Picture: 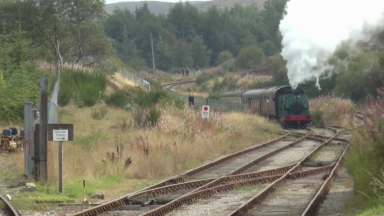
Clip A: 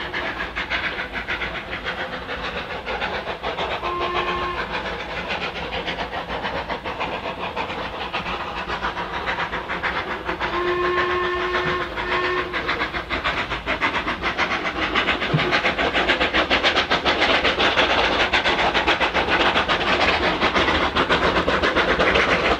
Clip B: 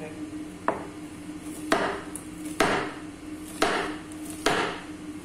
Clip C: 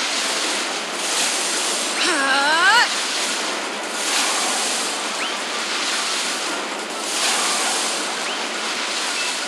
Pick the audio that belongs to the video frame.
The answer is A